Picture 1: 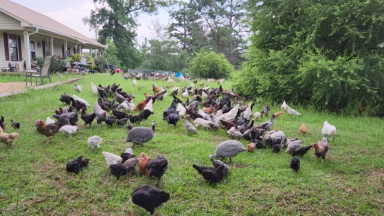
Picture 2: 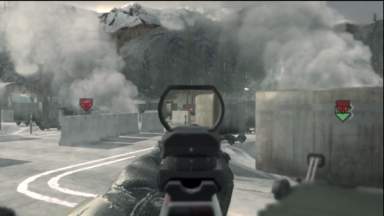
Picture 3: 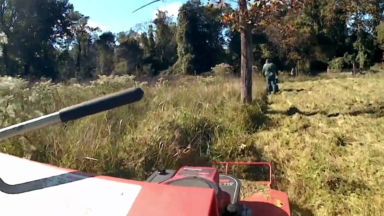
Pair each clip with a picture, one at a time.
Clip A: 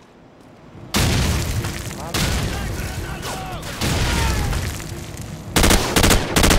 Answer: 2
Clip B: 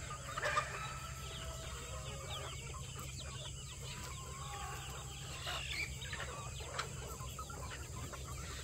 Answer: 1